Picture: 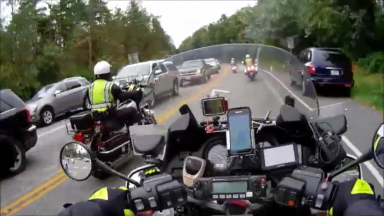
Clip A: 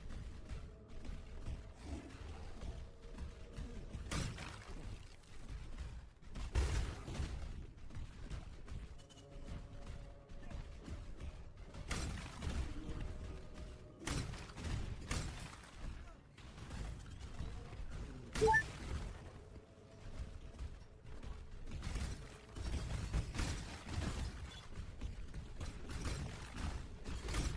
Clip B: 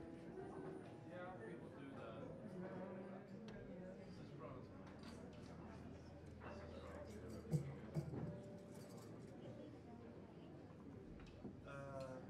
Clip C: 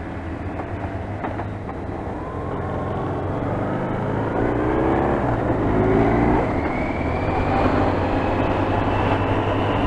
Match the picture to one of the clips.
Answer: C